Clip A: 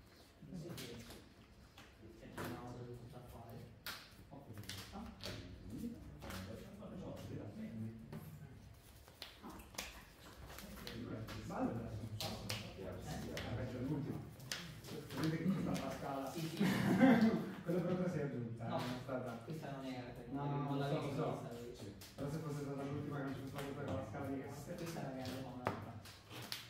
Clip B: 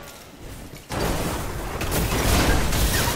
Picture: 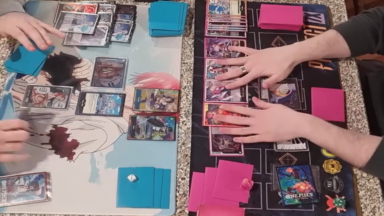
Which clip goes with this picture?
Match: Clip A